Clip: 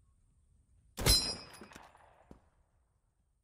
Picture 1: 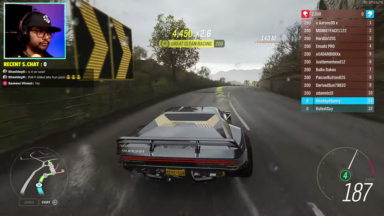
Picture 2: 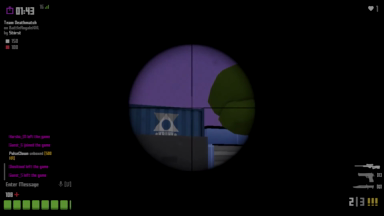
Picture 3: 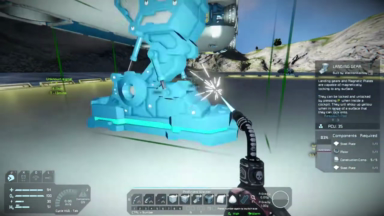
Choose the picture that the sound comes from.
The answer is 2